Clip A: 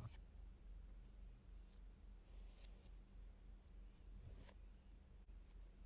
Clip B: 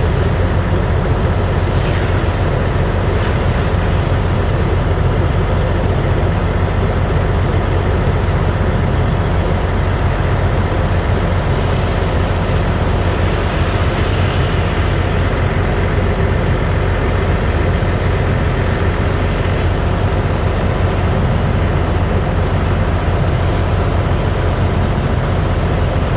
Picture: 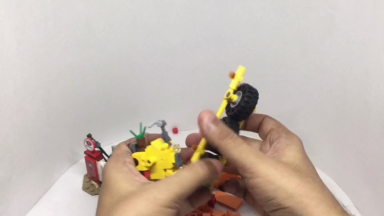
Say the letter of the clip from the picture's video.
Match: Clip A